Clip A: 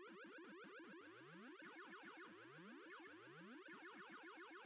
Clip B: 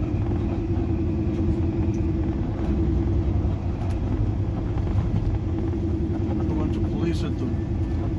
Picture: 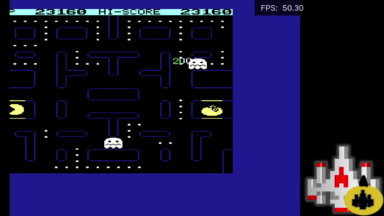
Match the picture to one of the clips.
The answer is A